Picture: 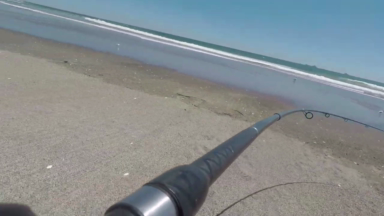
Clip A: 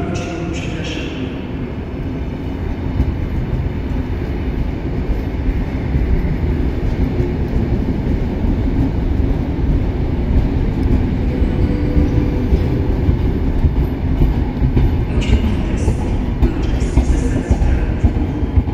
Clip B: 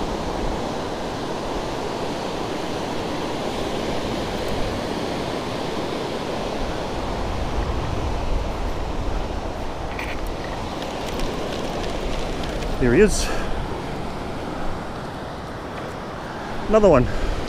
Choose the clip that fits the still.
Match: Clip B